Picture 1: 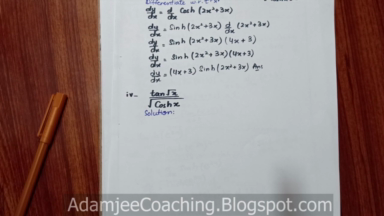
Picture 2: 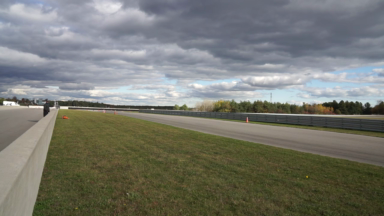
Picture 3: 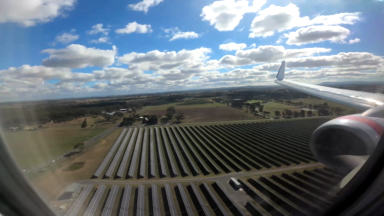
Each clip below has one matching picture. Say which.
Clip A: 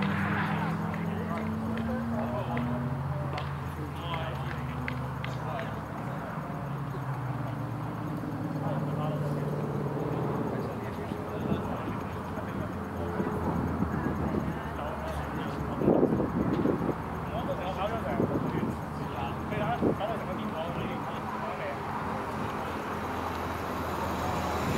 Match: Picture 2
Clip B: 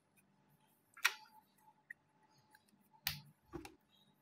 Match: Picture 1